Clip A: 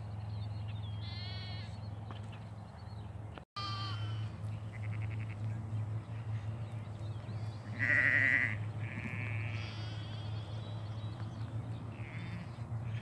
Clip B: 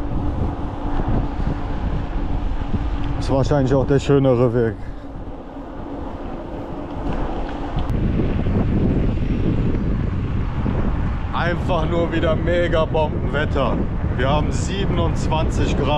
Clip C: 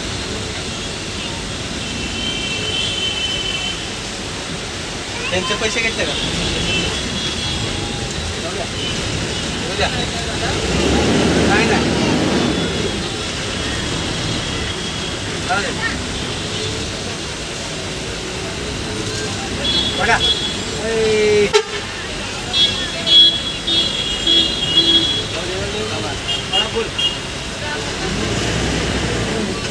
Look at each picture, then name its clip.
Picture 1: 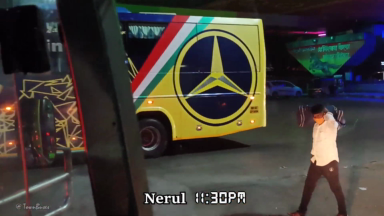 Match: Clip C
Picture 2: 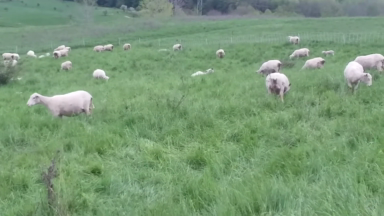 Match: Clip A